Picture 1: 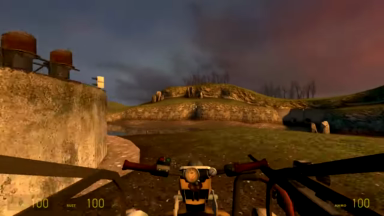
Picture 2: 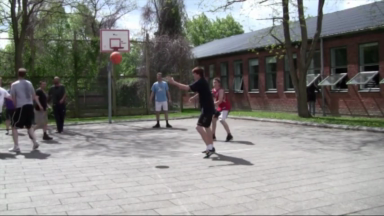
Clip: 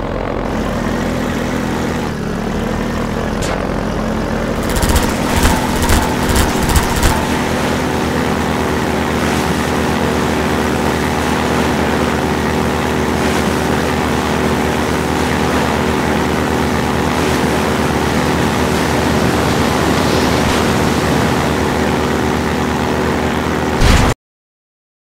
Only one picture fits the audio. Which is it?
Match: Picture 1